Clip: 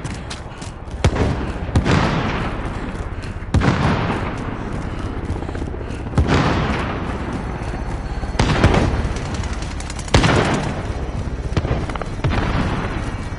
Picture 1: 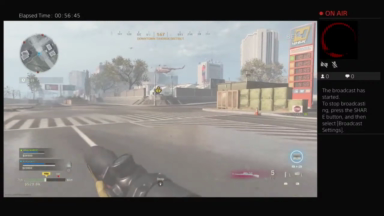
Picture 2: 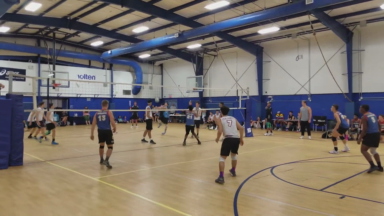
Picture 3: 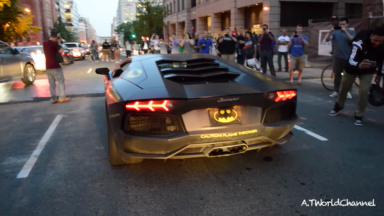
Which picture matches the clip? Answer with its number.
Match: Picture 1